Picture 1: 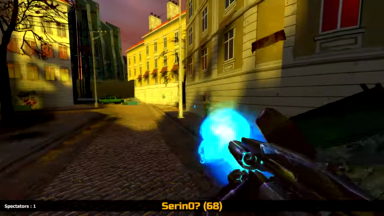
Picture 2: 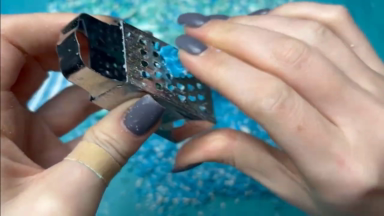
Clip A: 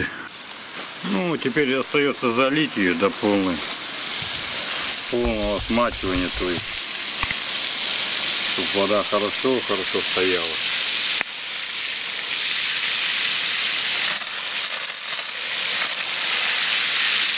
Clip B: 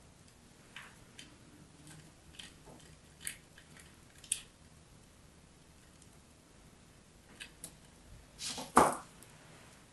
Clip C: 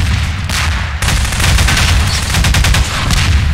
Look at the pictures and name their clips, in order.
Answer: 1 C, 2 B